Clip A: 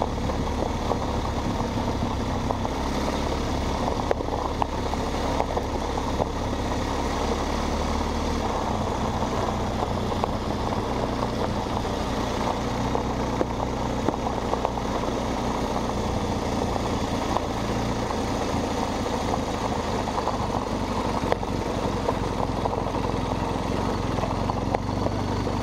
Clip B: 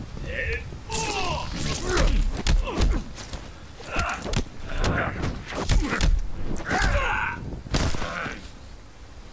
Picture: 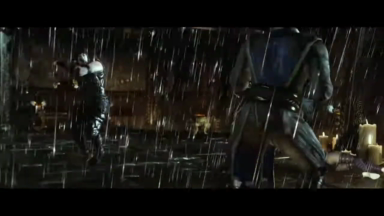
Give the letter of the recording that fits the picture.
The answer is B